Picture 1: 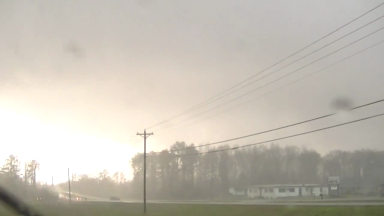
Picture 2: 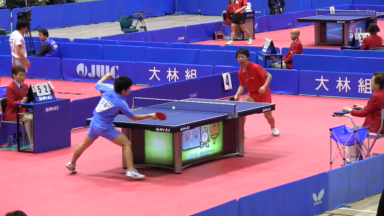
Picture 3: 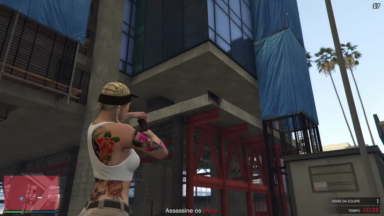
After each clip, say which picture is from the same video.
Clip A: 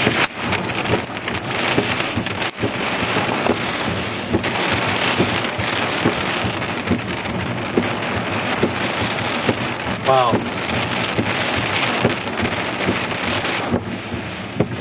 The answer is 1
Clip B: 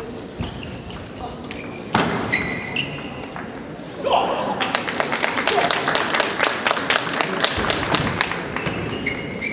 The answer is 2